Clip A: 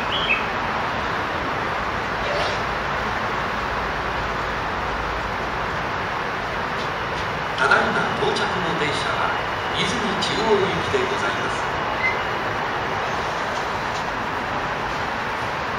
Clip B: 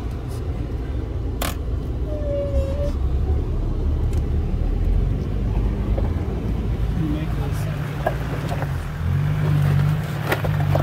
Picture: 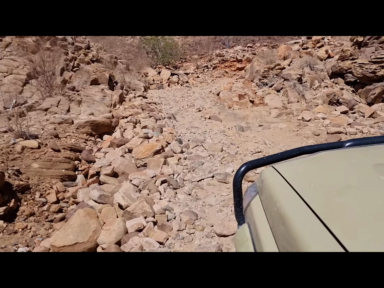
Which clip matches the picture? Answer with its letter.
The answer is B